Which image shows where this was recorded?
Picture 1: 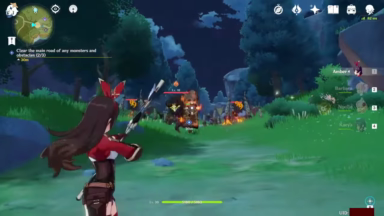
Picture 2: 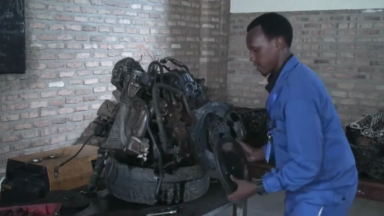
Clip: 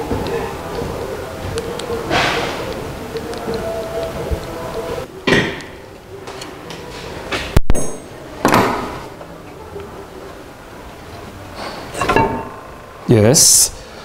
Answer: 2